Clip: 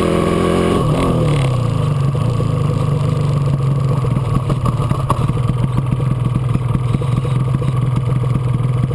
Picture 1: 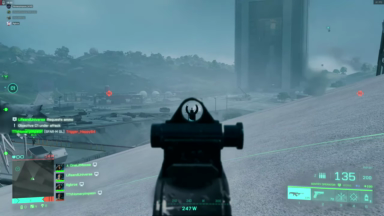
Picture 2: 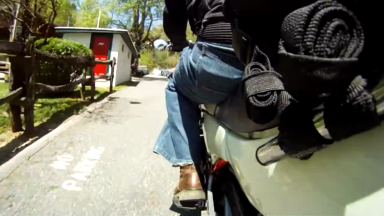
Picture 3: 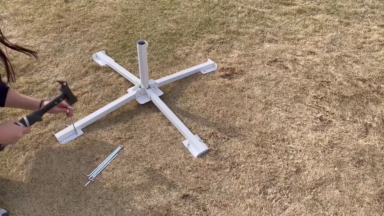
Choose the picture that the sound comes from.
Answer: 2